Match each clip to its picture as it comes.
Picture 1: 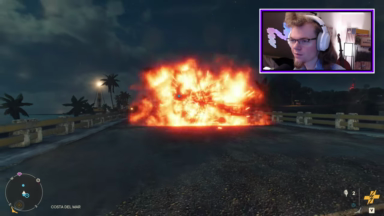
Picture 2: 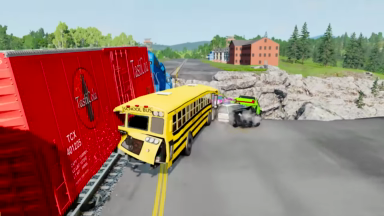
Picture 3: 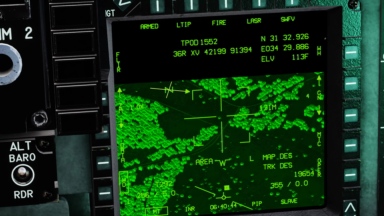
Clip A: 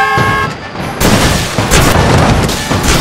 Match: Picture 2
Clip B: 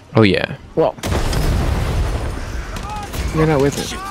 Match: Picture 1